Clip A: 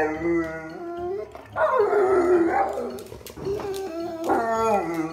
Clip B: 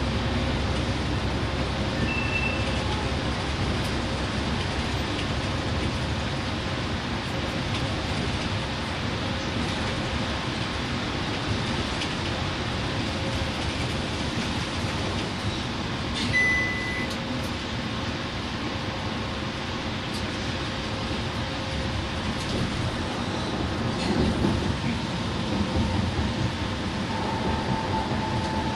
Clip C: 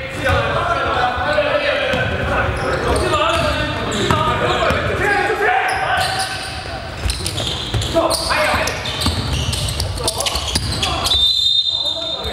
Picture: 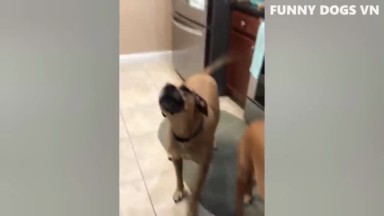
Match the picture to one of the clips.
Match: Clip A